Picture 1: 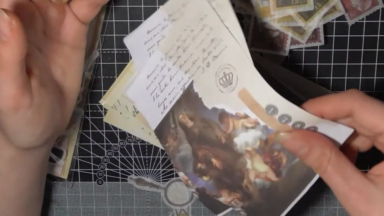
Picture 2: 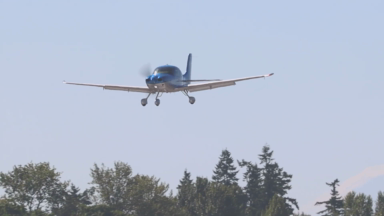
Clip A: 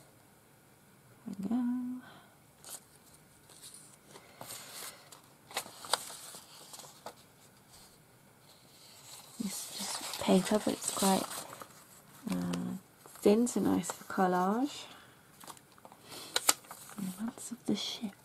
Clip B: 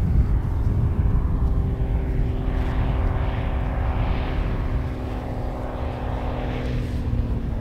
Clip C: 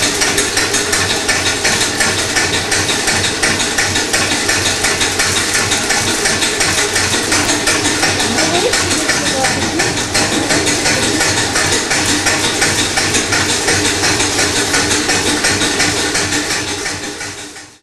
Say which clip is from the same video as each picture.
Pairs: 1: A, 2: B